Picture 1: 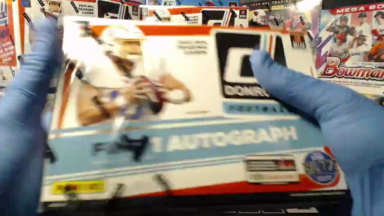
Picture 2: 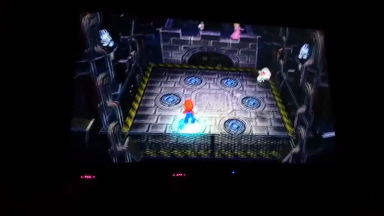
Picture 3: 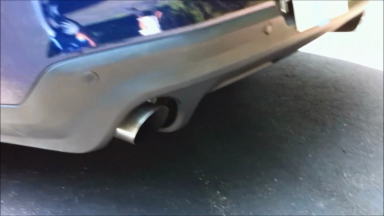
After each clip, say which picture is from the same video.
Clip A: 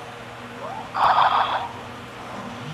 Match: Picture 2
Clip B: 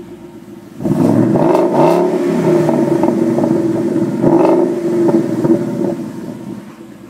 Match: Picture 3